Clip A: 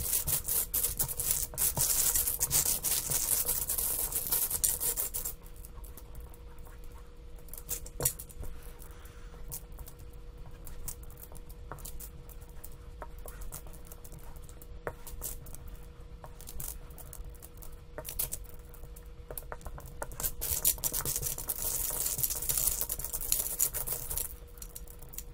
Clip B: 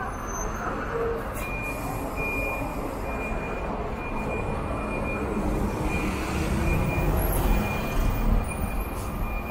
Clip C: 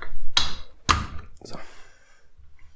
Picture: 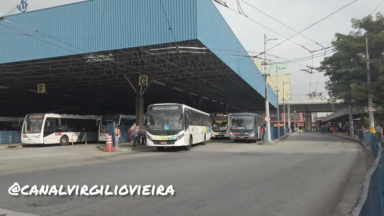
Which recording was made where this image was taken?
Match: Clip B